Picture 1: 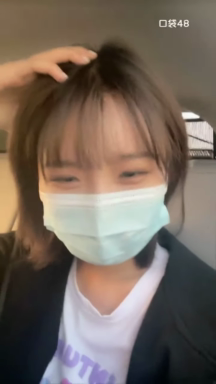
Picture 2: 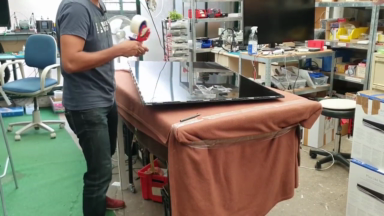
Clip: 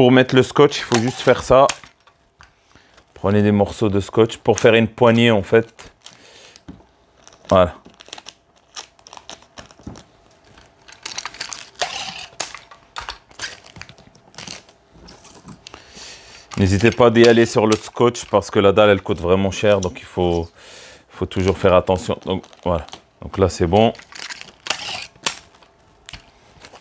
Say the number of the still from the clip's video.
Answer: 2